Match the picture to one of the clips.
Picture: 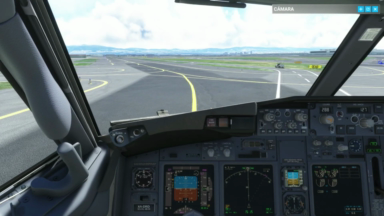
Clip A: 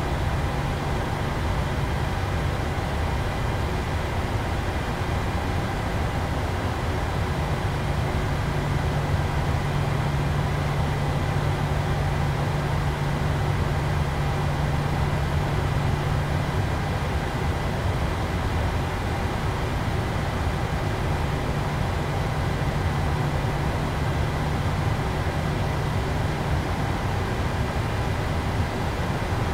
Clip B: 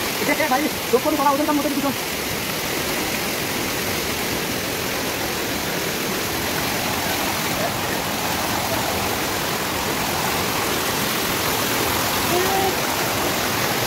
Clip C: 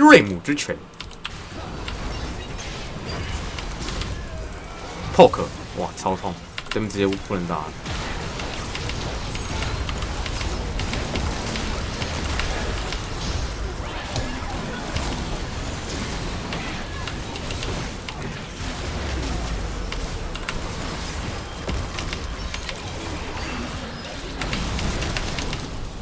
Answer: A